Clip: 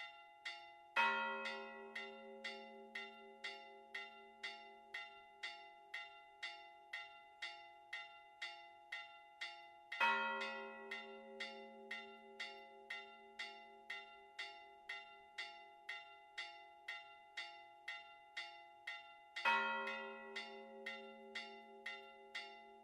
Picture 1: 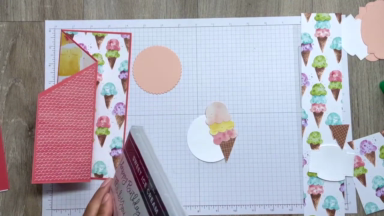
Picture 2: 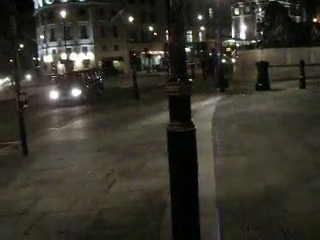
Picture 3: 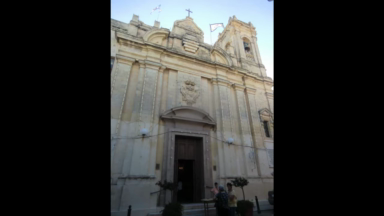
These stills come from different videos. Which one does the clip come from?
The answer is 3